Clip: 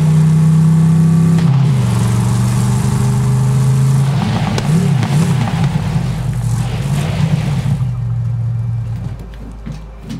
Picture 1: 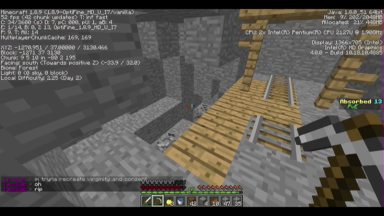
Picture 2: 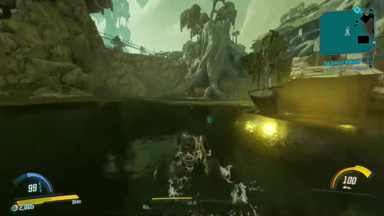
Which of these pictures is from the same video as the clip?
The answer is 2